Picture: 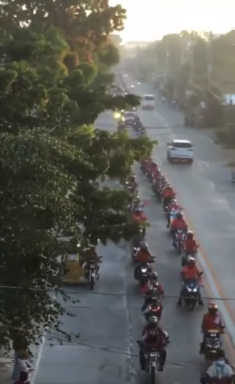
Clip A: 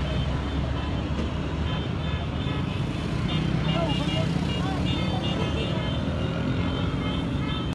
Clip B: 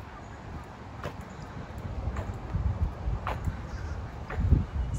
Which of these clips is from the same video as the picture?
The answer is A